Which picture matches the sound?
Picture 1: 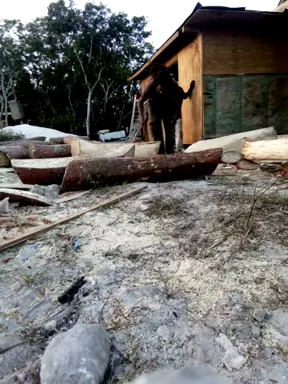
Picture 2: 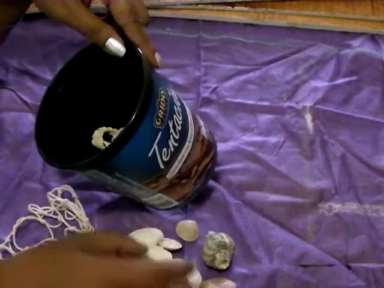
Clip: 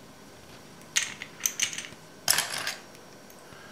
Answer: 2